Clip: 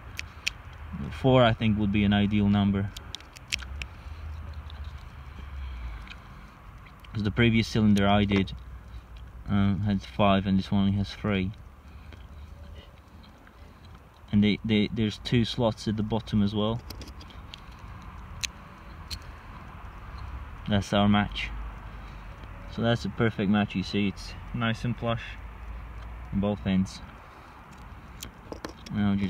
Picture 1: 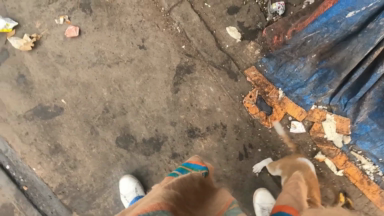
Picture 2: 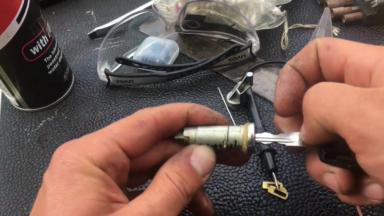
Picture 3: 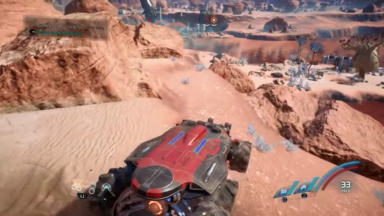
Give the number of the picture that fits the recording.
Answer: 2